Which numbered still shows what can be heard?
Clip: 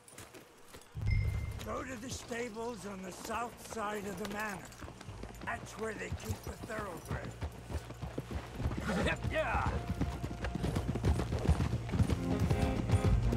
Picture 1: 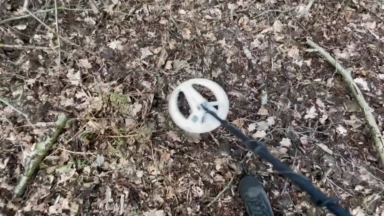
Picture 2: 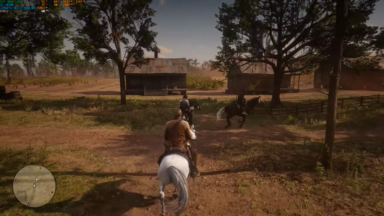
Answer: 2